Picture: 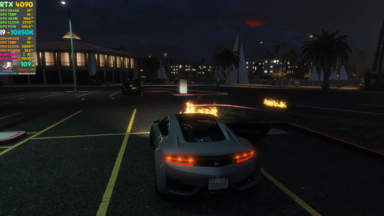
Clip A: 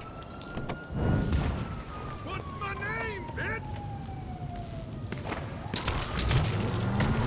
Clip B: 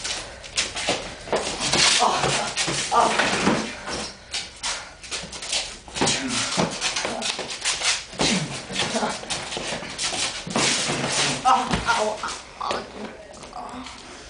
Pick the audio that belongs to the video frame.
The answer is A